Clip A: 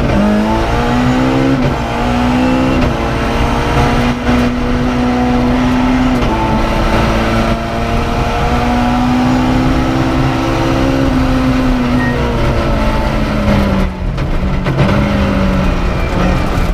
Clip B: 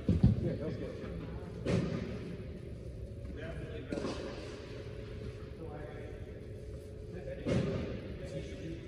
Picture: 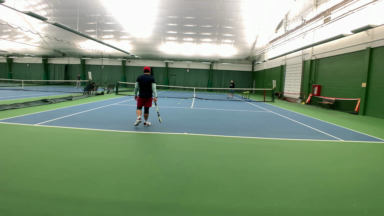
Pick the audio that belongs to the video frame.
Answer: B